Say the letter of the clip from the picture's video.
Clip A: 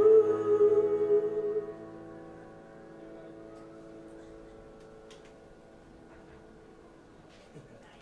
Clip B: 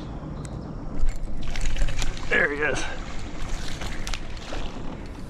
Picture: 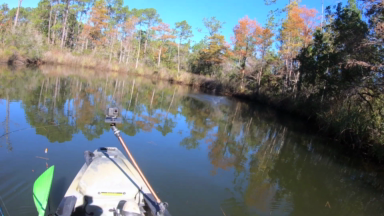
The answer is B